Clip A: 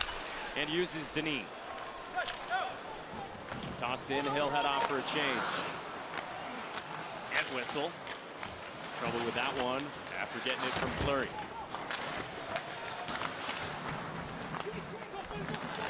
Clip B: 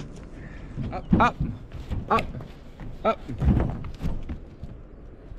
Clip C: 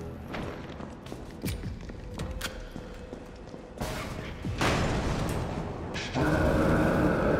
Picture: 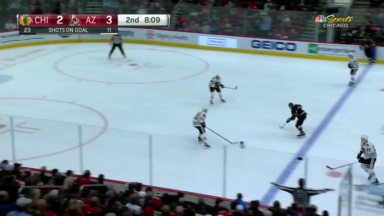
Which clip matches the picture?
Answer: A